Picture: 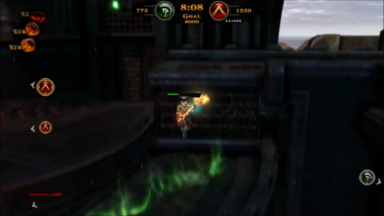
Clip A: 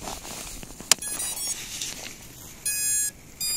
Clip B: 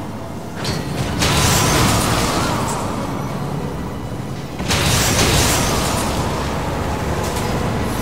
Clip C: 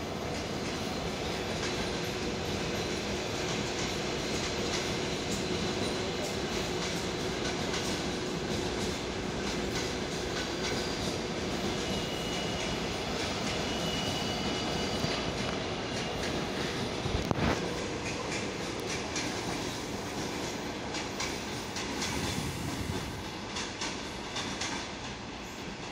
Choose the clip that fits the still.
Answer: B